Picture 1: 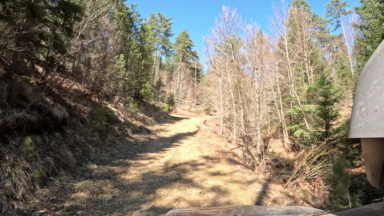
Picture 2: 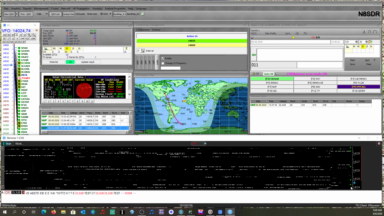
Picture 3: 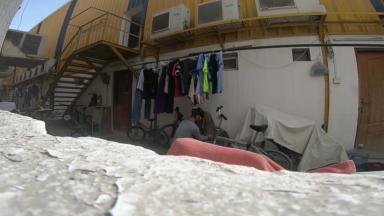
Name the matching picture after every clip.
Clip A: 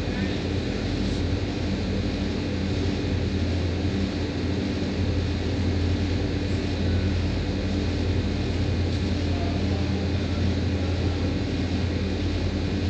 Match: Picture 3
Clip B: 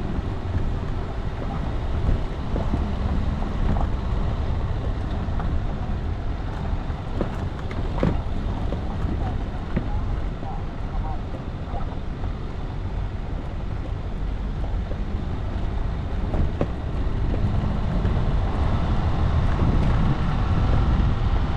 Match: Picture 1